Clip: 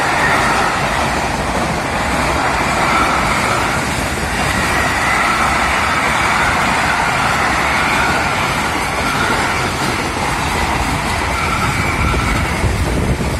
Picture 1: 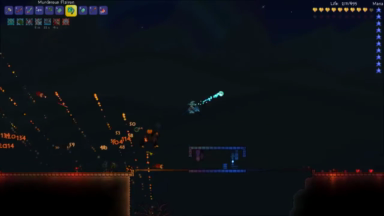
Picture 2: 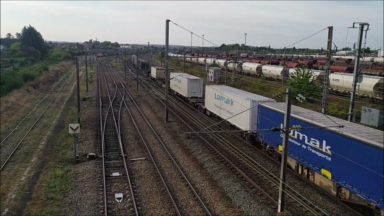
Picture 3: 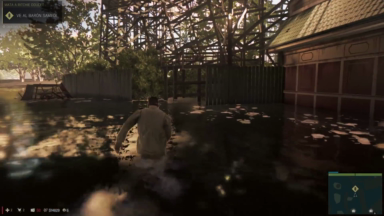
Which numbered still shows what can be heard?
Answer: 2